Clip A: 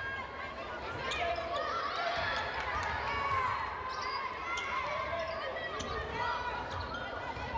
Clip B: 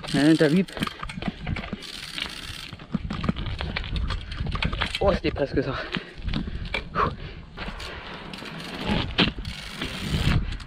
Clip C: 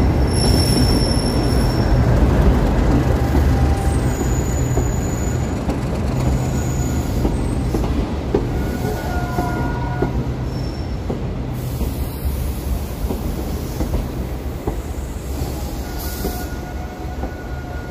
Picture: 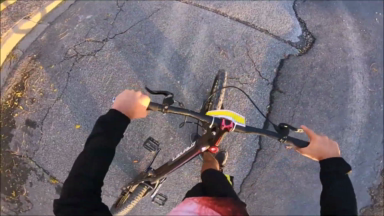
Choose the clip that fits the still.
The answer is B